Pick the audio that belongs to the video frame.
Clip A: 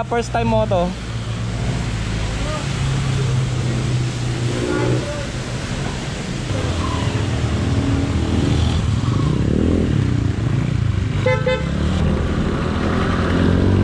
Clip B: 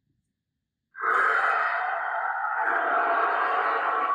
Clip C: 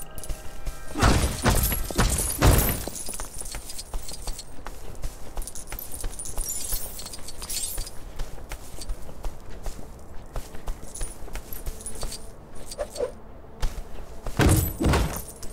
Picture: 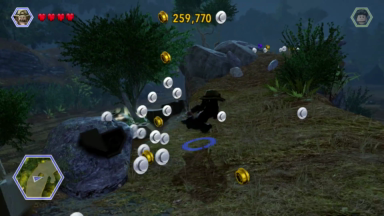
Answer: C